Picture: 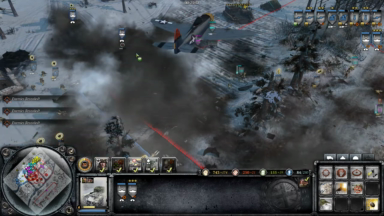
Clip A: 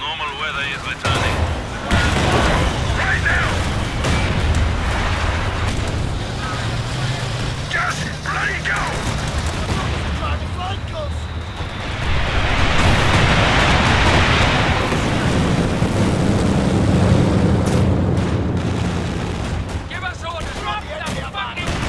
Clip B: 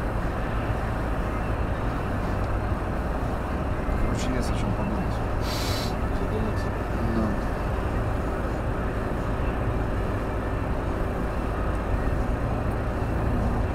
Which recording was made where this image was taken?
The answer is A